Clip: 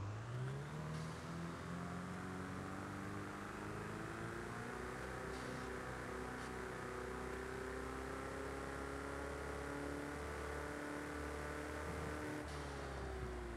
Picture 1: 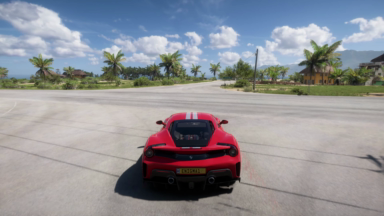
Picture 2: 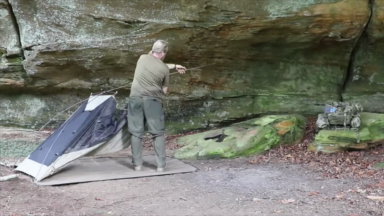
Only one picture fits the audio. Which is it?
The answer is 1